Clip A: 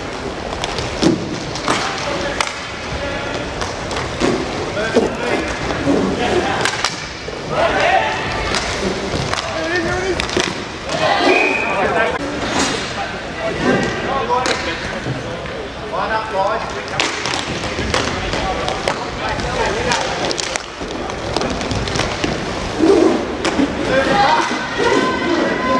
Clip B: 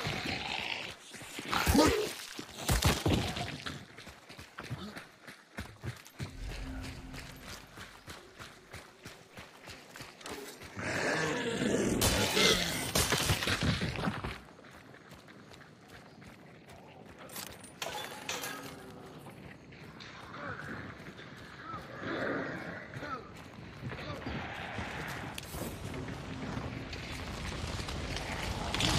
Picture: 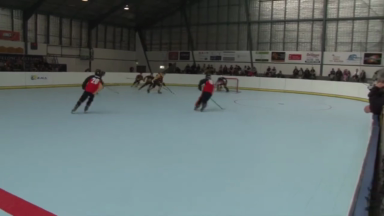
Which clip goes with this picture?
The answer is A